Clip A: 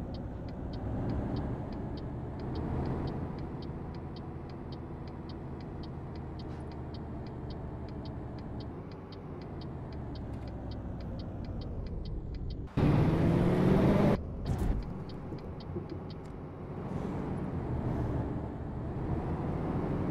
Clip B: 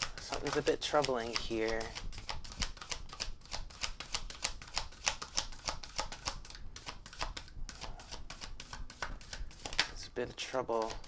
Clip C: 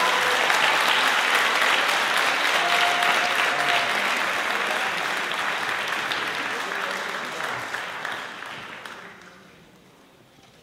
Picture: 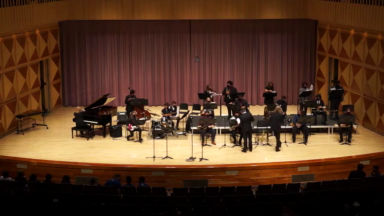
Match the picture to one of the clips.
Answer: C